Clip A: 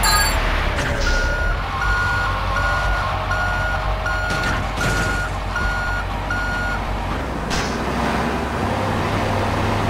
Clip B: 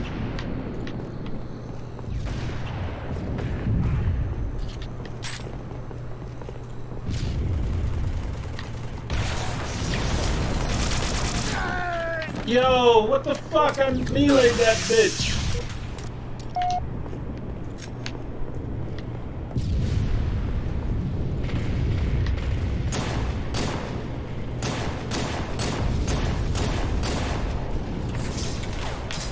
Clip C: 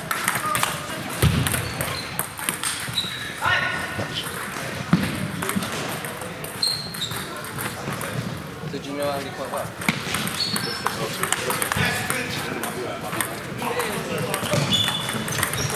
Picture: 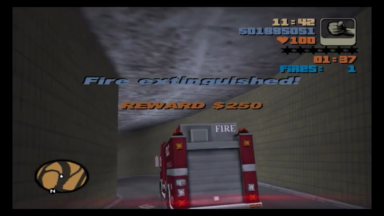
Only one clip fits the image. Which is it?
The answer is A